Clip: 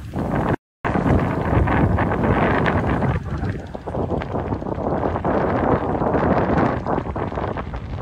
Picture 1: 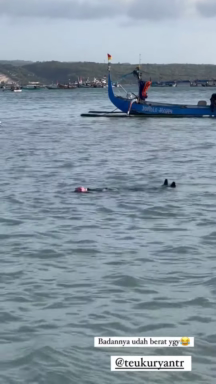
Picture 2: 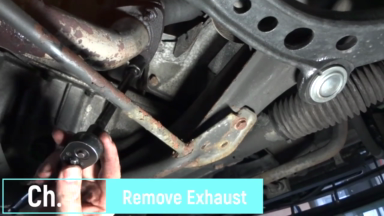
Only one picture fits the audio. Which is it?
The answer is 1